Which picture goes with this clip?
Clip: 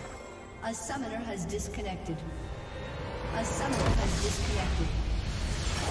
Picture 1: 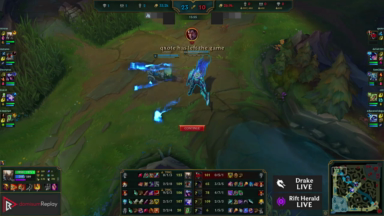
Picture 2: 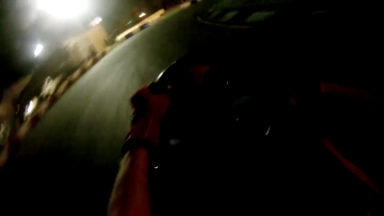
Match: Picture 1